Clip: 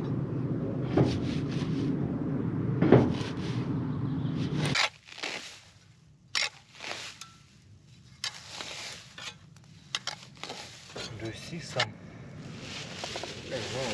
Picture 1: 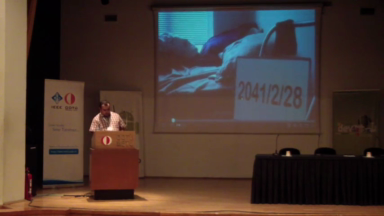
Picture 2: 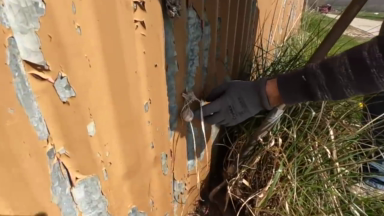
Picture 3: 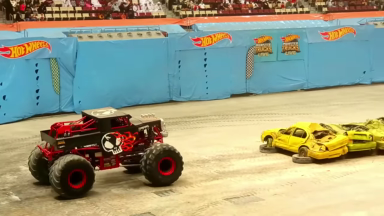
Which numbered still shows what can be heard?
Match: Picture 2